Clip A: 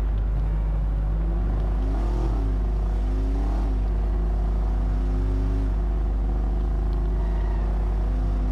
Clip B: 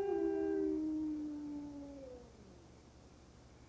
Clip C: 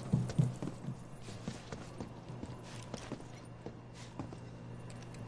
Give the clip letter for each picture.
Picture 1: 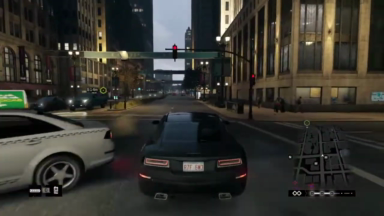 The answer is A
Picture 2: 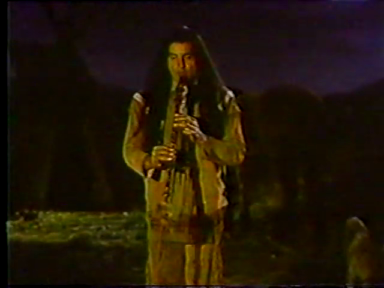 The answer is B